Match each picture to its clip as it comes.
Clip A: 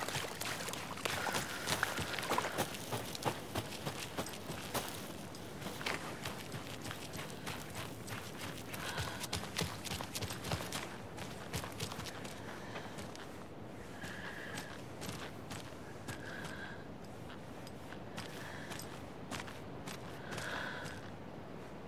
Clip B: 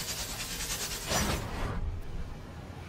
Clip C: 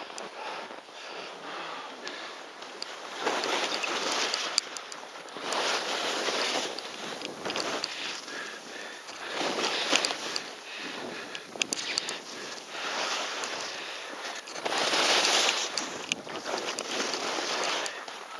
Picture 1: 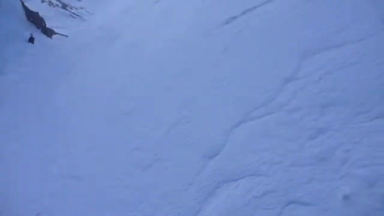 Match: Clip C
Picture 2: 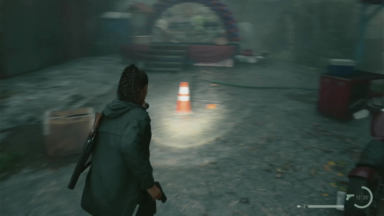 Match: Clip A